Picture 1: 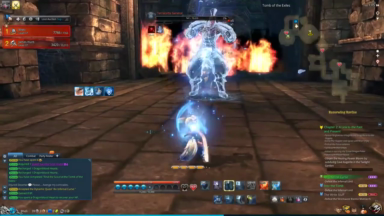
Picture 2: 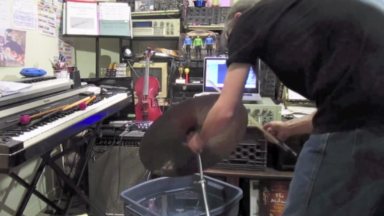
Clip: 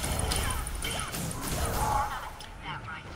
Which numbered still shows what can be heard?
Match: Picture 1